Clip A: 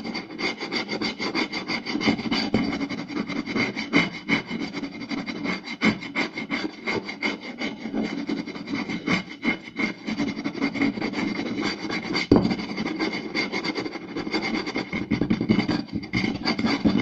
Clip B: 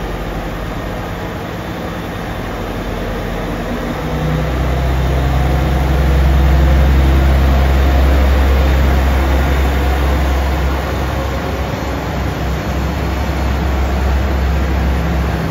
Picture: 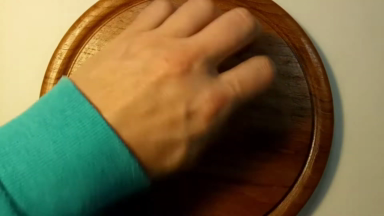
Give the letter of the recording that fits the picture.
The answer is A